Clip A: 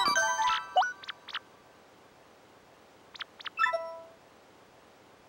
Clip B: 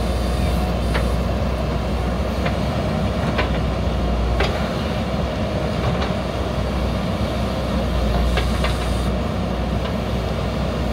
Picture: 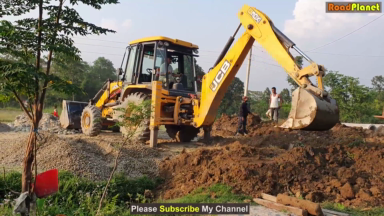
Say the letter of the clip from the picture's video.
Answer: B